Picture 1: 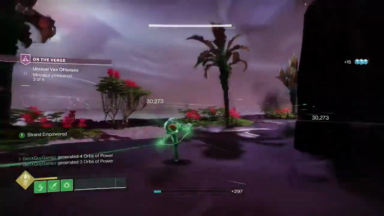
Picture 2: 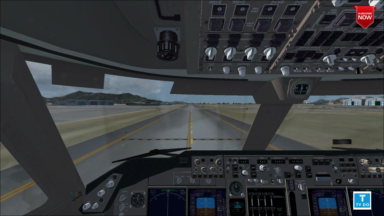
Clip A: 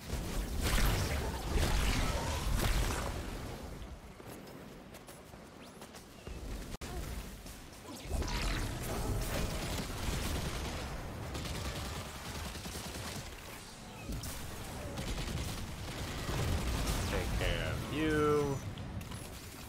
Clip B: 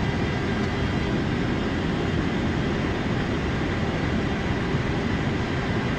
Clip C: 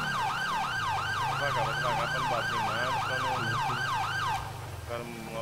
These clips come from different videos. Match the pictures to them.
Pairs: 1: A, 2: B